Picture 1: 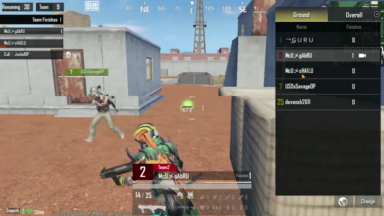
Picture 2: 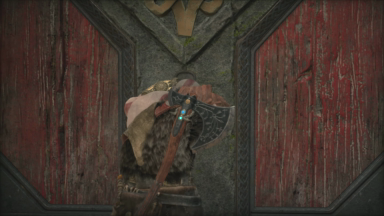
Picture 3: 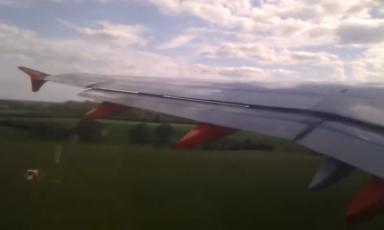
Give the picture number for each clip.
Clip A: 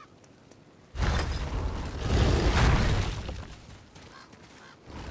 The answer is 2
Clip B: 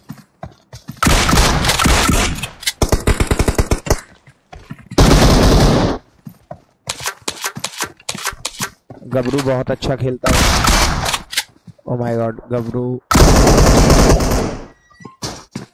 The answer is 1